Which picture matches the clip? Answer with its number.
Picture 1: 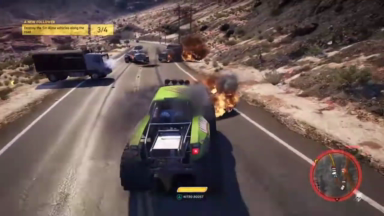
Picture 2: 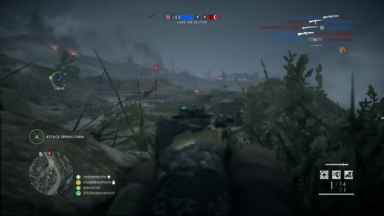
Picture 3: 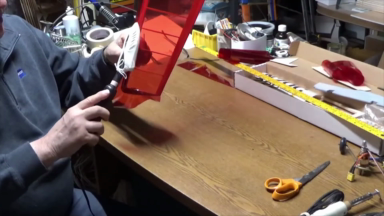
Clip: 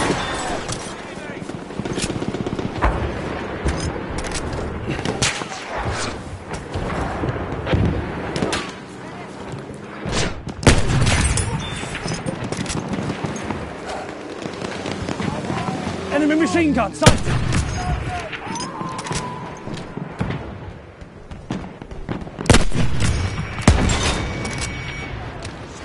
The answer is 2